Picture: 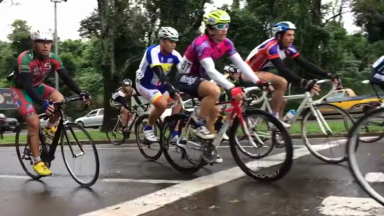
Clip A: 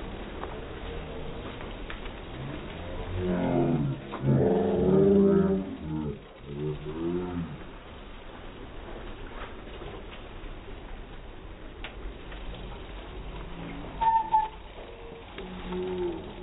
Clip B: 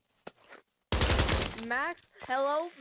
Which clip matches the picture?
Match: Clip A